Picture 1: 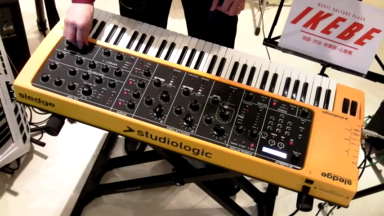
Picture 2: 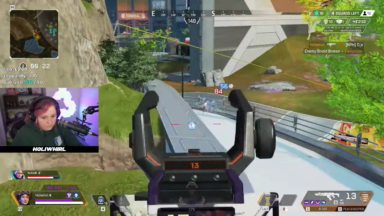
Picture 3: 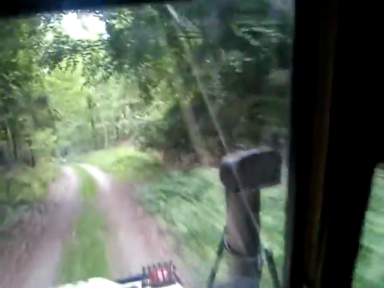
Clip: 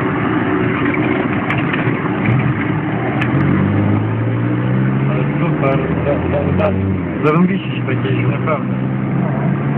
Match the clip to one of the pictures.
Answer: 3